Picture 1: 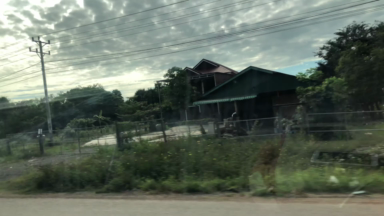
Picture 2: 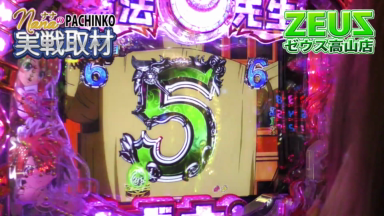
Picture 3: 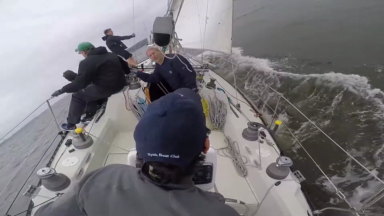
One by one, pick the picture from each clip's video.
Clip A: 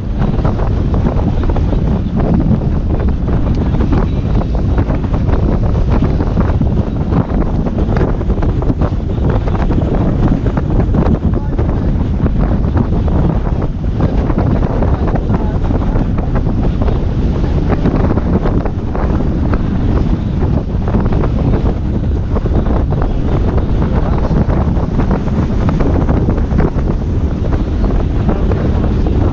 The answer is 3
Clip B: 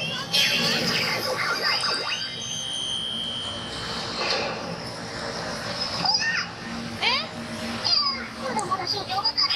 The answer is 2